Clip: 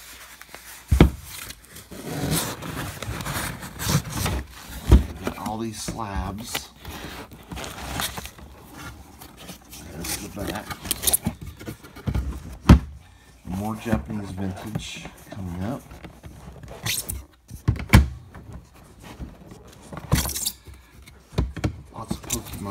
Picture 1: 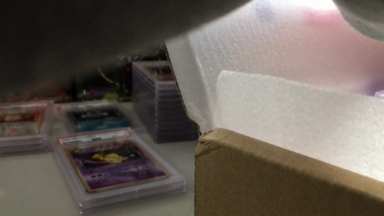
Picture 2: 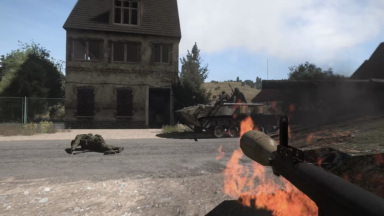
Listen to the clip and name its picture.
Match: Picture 1